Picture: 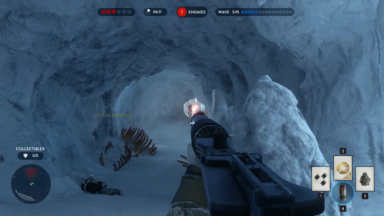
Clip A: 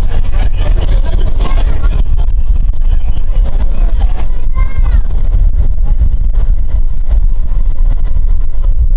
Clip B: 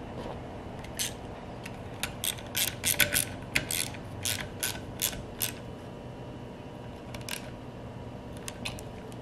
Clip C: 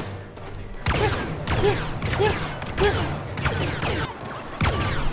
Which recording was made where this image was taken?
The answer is C